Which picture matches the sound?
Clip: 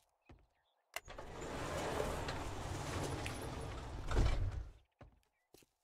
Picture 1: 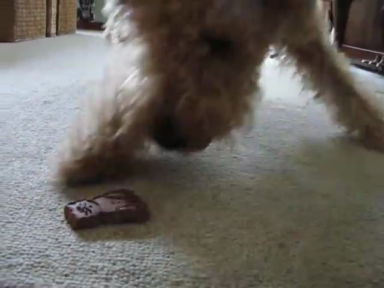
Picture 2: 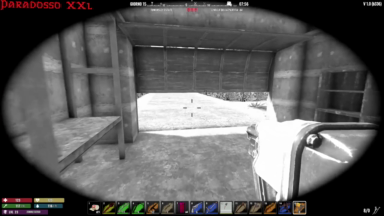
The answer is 2